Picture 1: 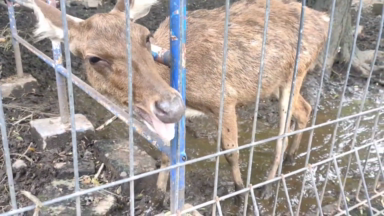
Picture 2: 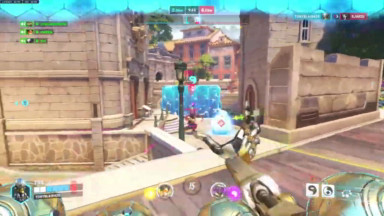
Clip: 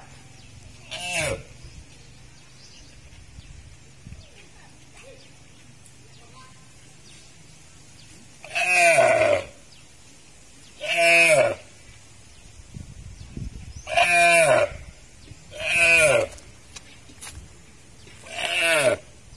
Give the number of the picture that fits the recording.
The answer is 1